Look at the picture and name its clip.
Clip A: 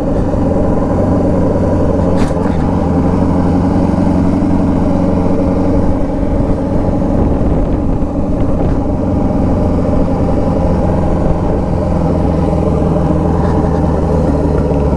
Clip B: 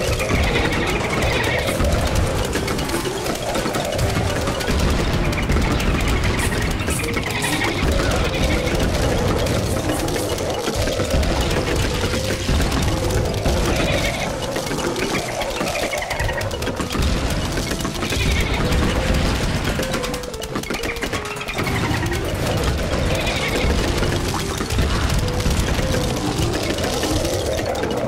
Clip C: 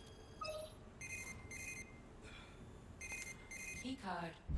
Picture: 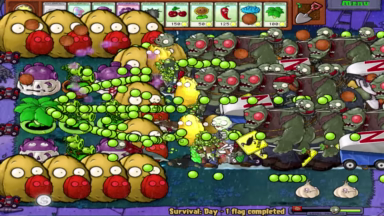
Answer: B